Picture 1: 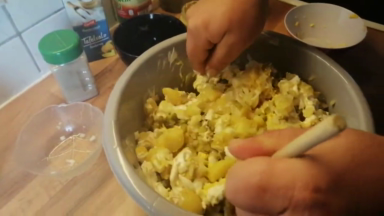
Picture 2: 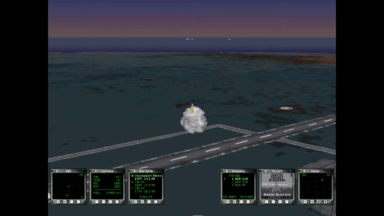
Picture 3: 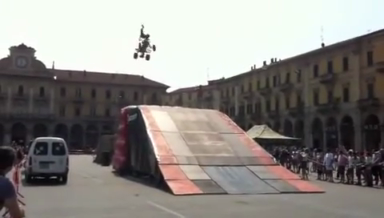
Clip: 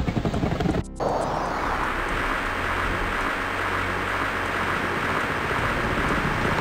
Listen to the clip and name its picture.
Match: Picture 2